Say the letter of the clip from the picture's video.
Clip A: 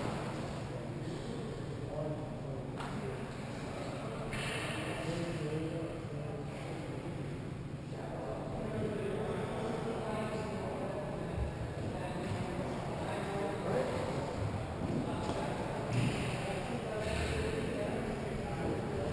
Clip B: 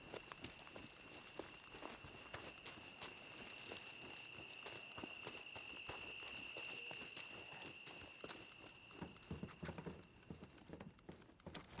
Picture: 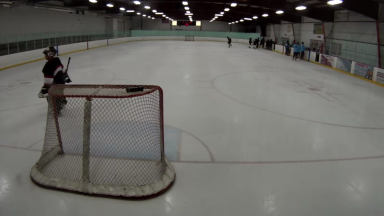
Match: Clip A